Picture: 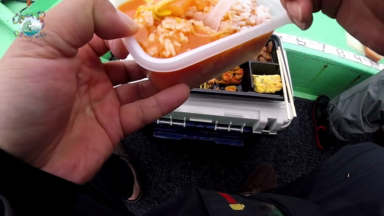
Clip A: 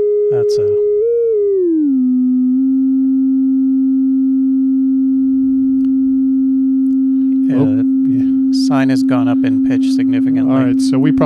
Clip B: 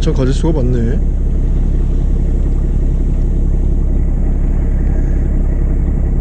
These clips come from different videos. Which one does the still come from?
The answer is B